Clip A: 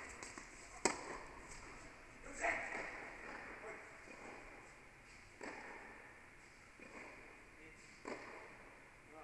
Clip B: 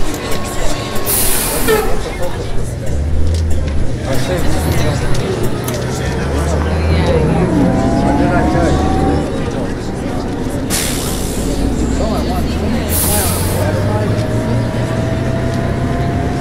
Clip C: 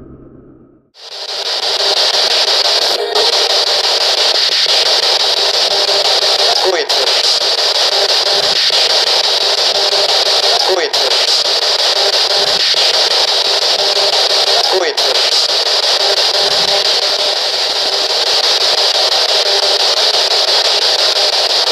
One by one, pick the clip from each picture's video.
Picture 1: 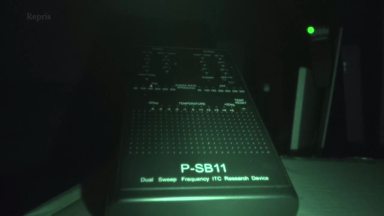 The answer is C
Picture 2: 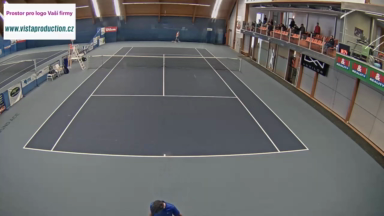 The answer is A